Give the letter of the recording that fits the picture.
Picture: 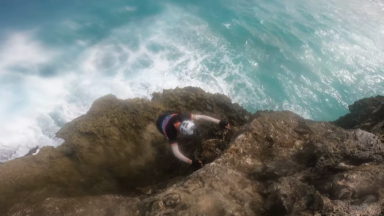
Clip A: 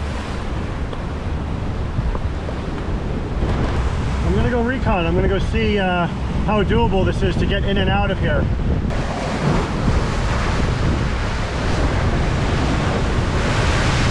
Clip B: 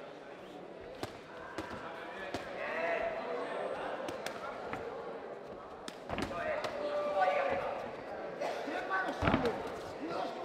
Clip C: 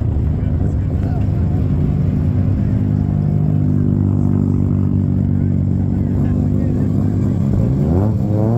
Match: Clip A